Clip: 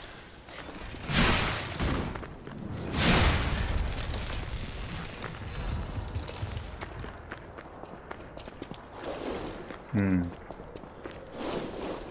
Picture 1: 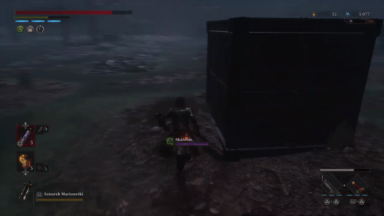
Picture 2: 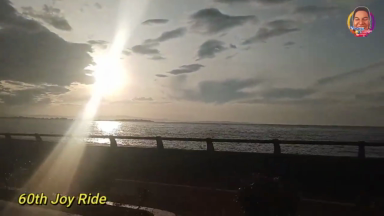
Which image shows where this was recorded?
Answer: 1